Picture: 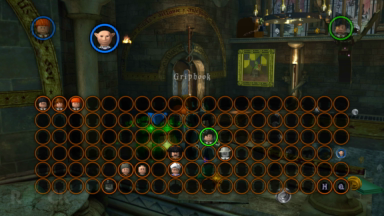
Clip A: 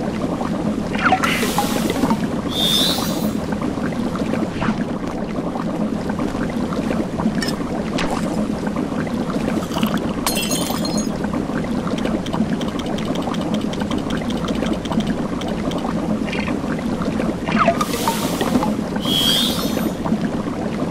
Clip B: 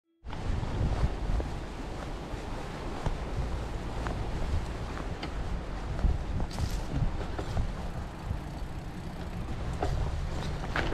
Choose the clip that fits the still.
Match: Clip A